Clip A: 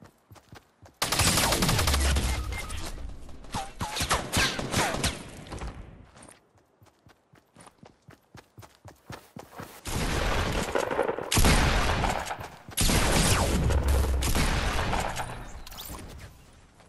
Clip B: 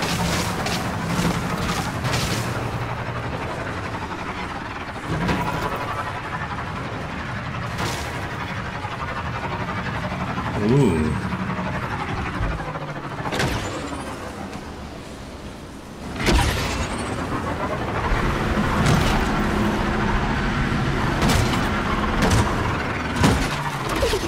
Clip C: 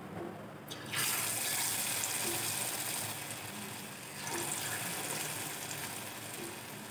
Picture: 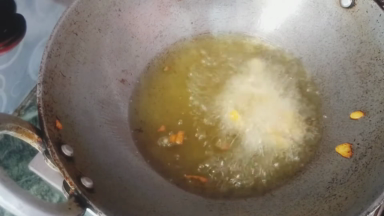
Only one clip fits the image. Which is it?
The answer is C